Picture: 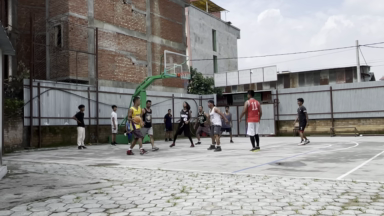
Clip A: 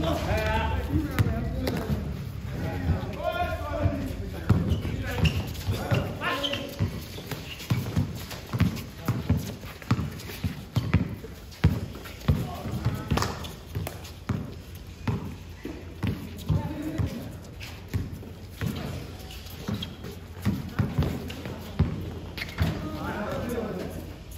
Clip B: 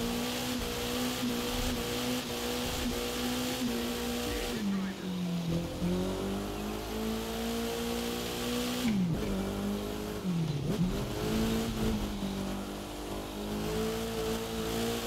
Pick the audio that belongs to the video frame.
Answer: A